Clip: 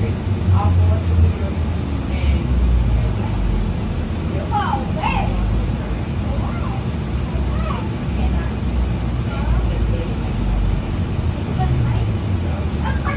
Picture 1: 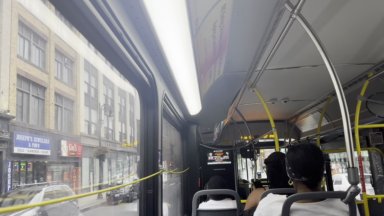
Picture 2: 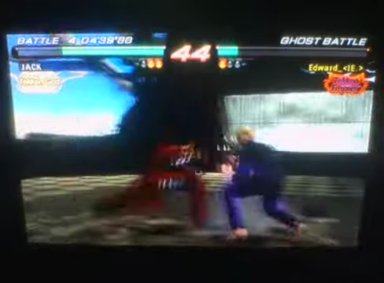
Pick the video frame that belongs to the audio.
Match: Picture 1